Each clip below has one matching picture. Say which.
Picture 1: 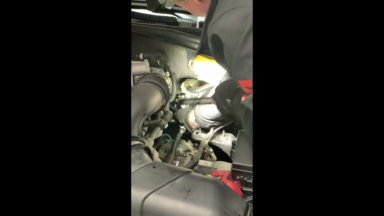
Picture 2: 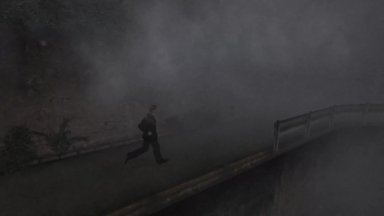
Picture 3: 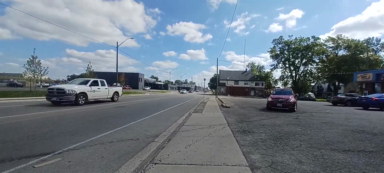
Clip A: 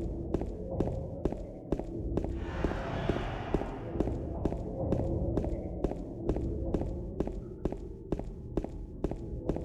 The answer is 2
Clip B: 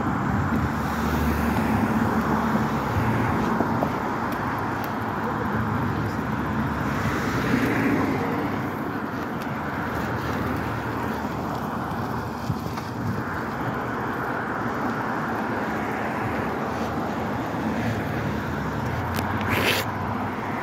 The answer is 3